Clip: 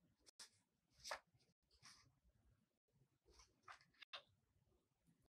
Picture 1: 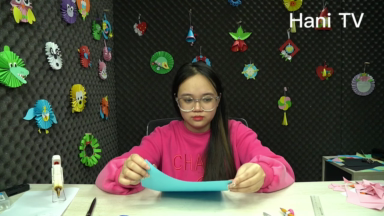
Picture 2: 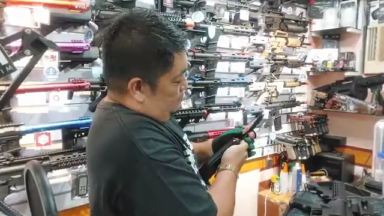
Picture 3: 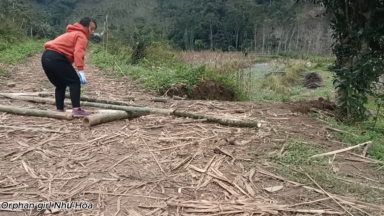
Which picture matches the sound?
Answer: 1